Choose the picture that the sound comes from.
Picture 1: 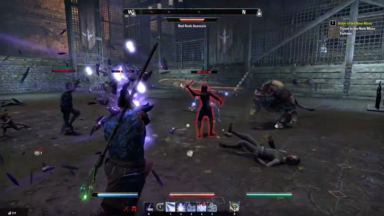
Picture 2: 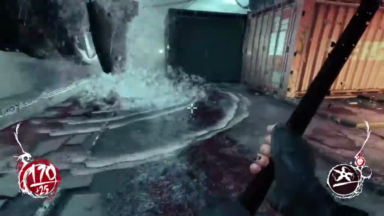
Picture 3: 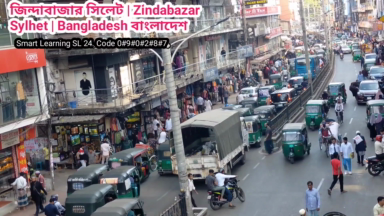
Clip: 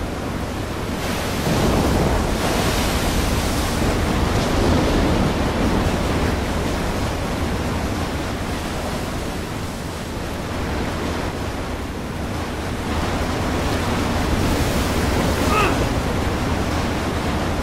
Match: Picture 2